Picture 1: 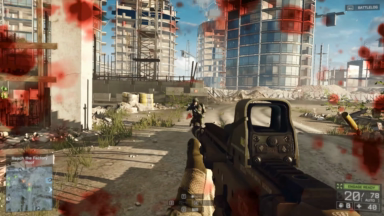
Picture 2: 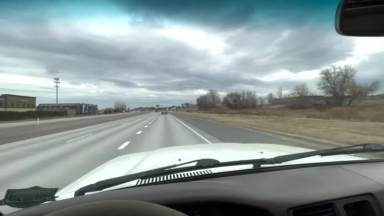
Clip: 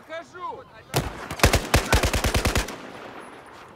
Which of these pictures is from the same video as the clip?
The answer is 1